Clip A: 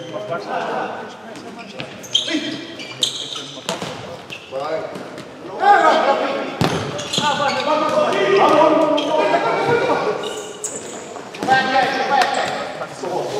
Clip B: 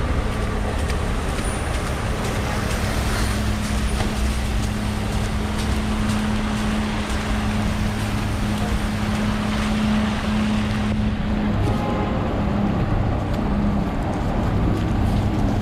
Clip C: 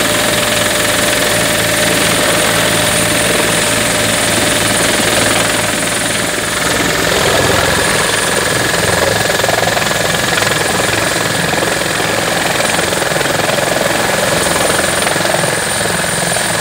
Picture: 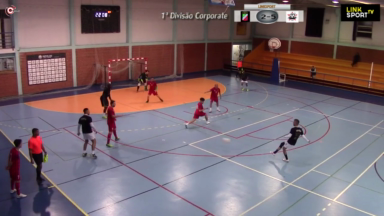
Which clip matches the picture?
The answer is A